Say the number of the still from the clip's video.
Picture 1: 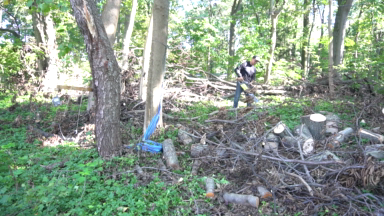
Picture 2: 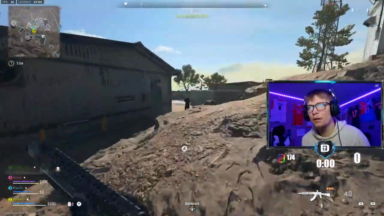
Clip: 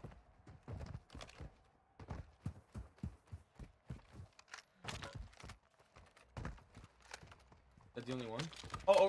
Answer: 2